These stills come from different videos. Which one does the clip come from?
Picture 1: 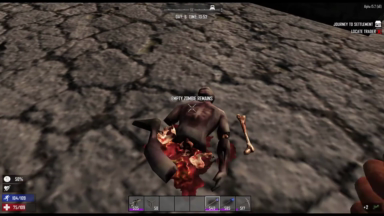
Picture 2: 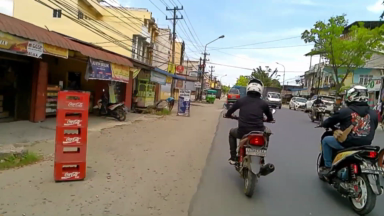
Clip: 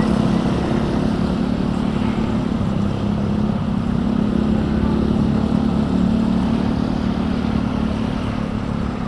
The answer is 2